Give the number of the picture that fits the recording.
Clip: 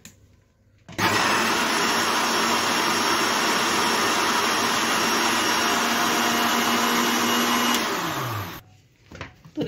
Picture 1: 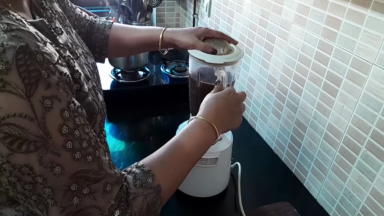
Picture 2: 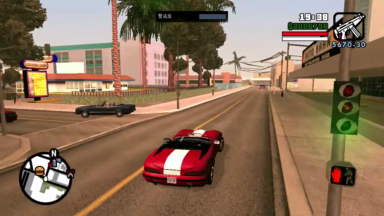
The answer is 1